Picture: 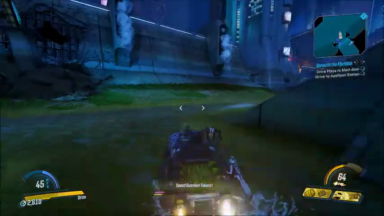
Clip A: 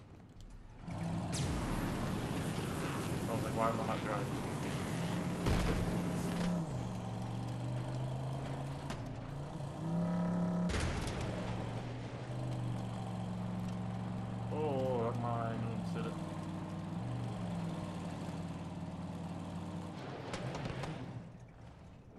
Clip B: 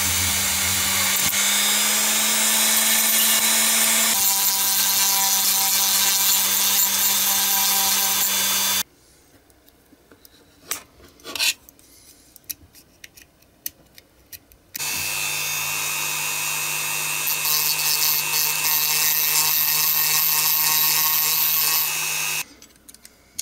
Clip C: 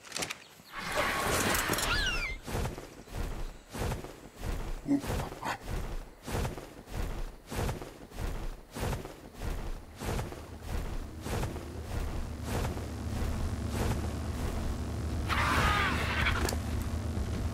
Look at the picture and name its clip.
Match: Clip A